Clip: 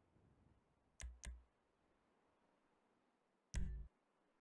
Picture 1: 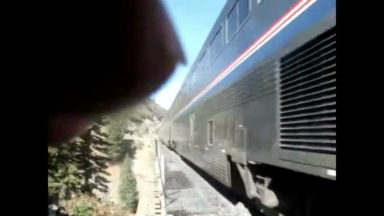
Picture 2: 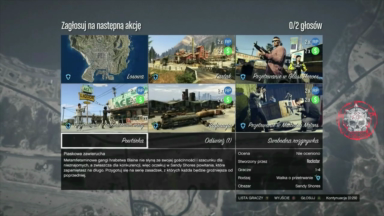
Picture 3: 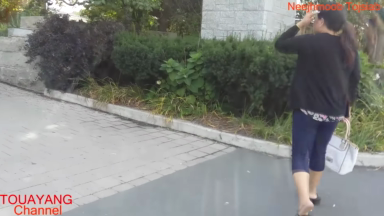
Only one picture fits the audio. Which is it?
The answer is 2